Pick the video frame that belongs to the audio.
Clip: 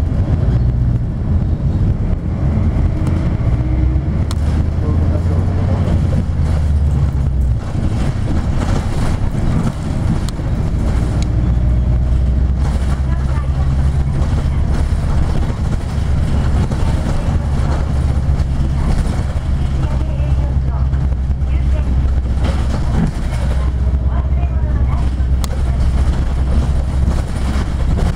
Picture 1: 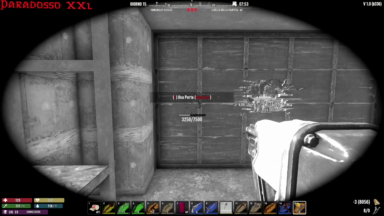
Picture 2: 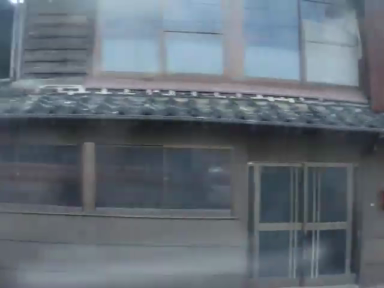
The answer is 2